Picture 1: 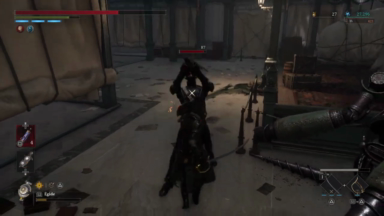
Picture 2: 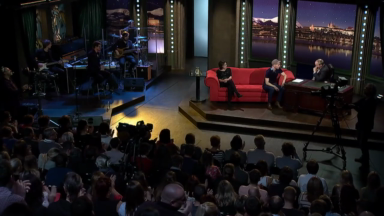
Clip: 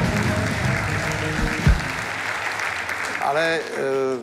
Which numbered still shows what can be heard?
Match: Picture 2